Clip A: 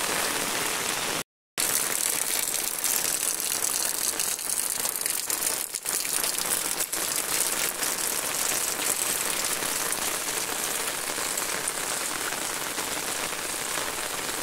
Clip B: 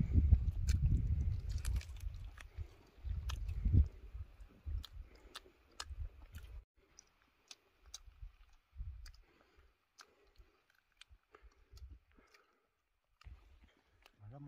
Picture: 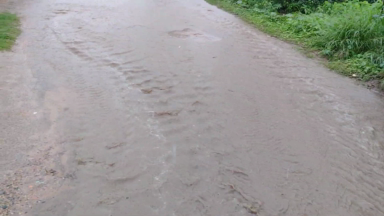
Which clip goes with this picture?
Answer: A